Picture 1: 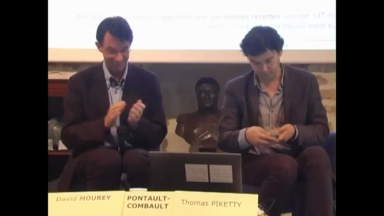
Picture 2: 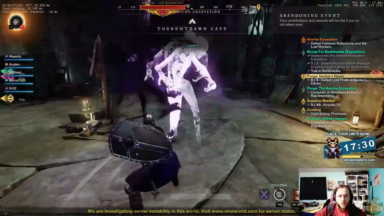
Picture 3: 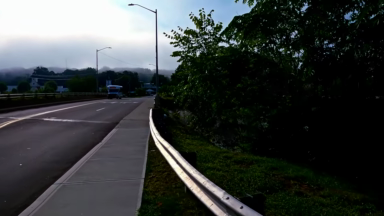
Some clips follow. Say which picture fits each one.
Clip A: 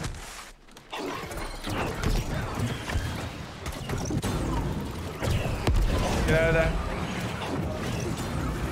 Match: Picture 2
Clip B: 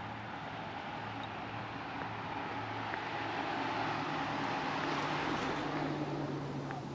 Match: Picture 3